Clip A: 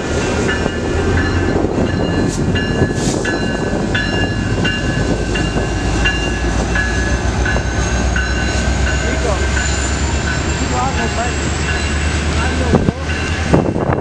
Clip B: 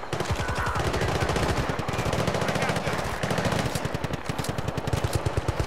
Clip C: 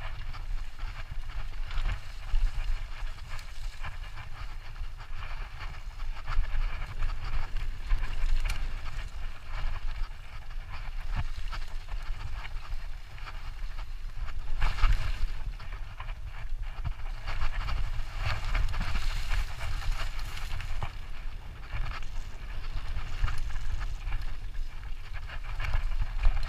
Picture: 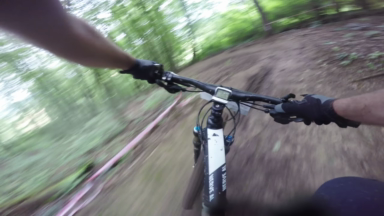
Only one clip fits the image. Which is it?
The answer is C